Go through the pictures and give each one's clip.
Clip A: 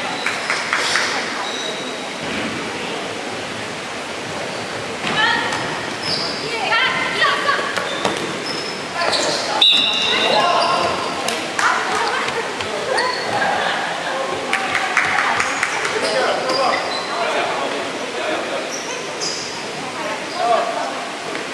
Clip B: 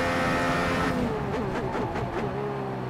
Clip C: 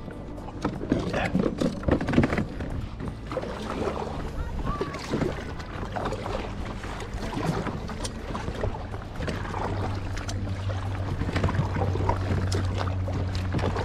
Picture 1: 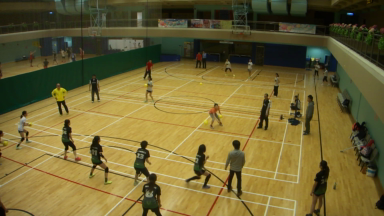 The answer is A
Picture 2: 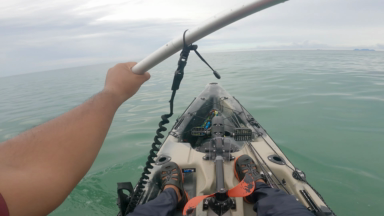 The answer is C